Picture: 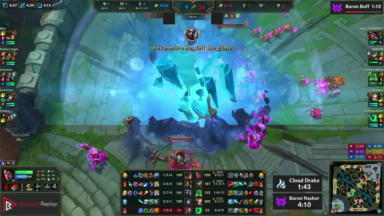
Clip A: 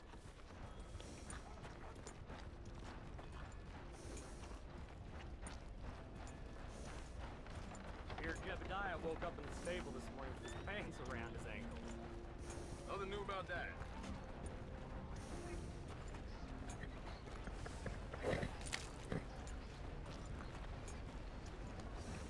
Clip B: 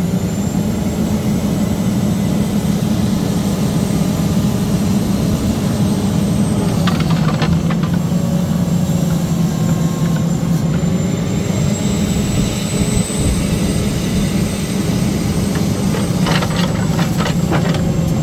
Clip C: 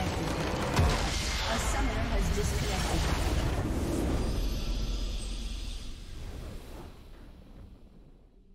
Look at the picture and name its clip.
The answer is C